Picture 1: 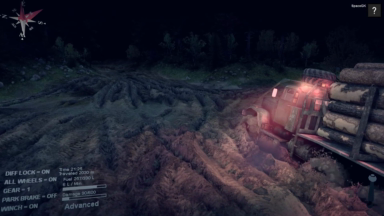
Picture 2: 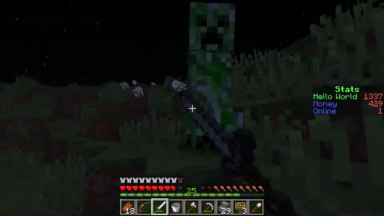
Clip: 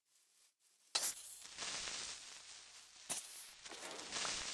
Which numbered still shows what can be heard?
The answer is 2